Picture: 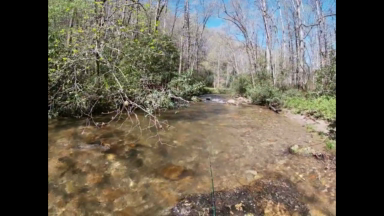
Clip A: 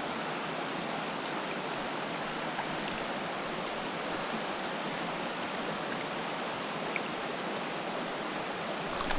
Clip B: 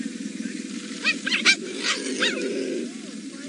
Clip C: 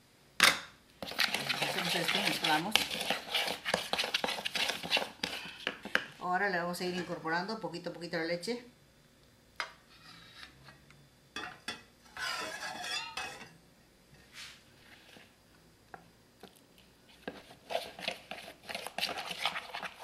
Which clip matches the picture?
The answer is A